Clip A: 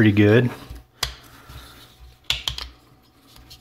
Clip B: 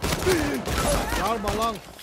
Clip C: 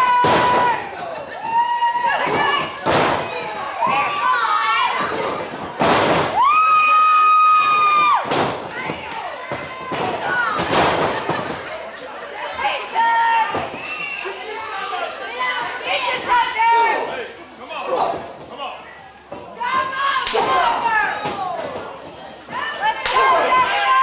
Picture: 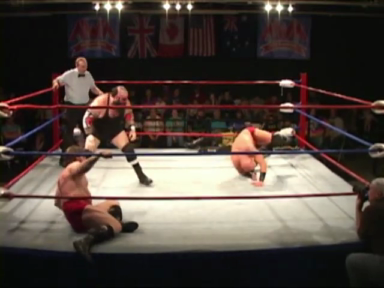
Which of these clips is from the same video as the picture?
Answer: C